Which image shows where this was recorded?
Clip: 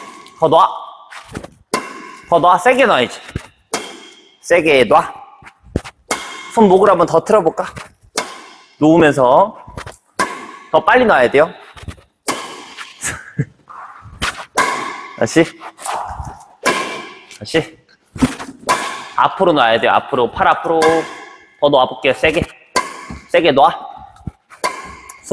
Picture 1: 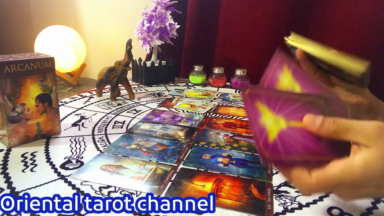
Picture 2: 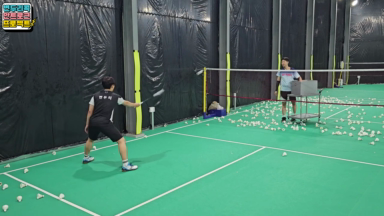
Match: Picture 2